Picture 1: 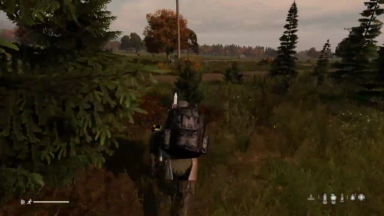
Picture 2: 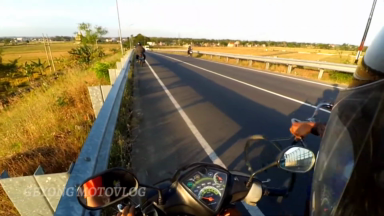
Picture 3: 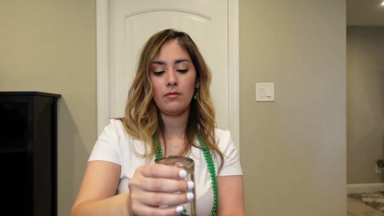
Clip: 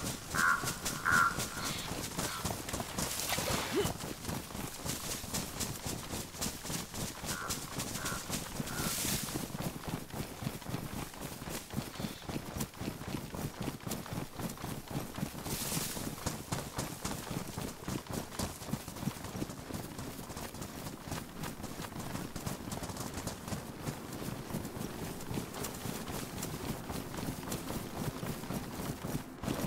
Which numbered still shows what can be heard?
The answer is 1